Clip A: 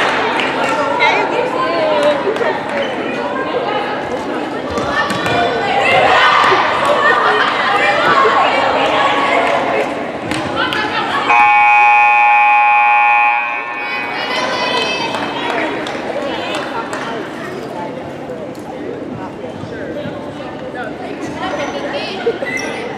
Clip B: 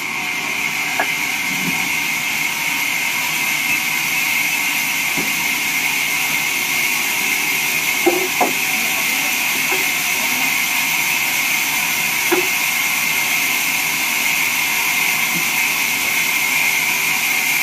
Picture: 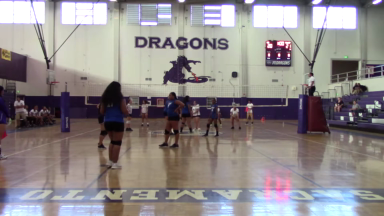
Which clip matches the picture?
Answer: A